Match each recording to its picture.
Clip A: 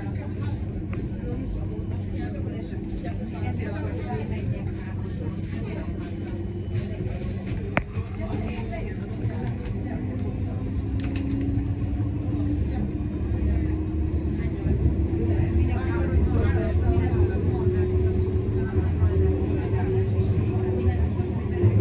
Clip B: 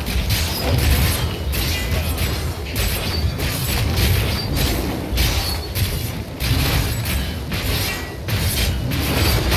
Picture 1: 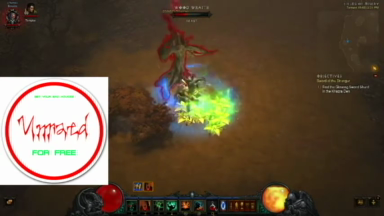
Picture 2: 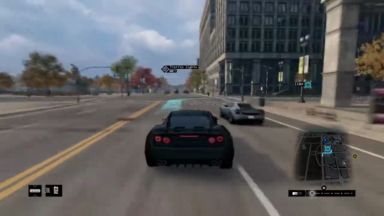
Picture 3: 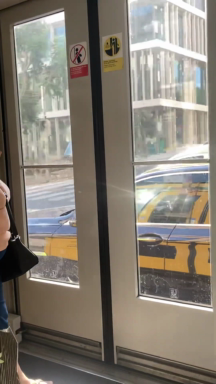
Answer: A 3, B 1